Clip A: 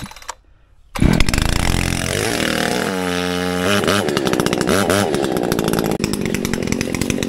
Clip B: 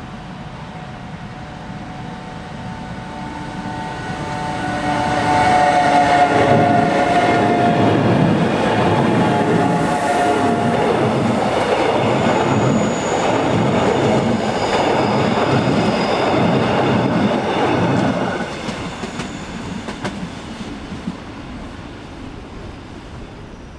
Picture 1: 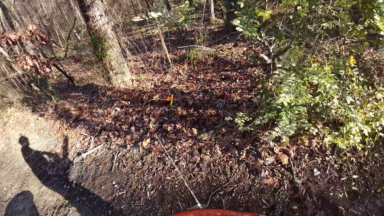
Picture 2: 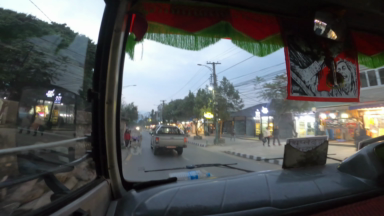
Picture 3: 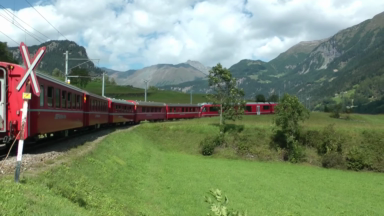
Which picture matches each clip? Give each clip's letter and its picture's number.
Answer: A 1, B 3